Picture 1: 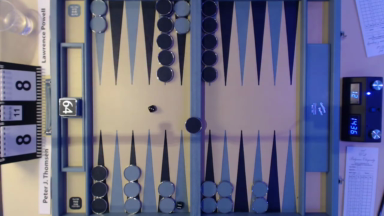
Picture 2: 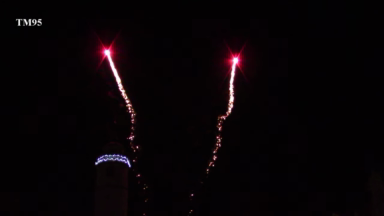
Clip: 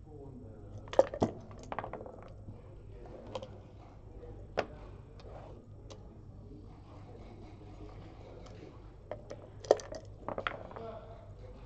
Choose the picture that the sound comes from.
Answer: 1